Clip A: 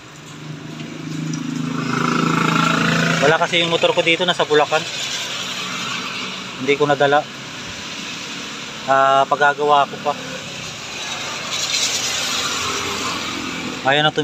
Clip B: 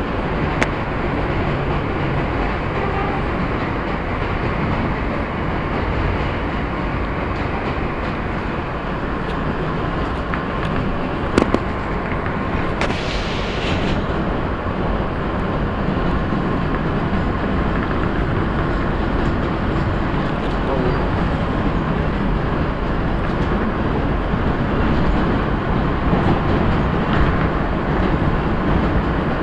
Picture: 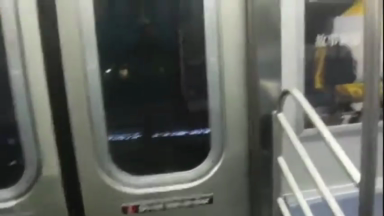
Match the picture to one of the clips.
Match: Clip B